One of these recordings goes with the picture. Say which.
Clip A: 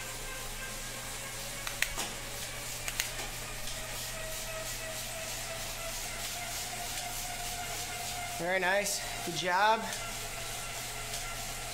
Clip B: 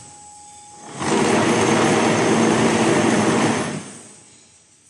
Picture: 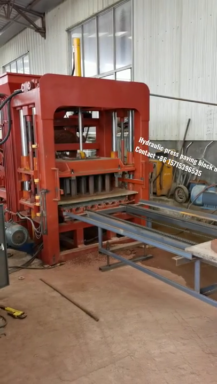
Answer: B